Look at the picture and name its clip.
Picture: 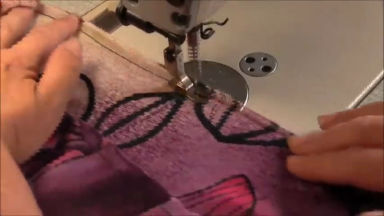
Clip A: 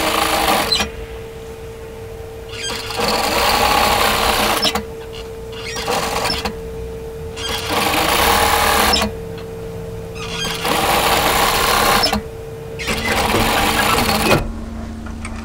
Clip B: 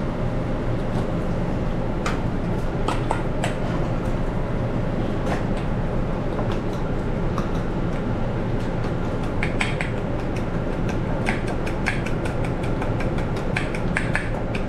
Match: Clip A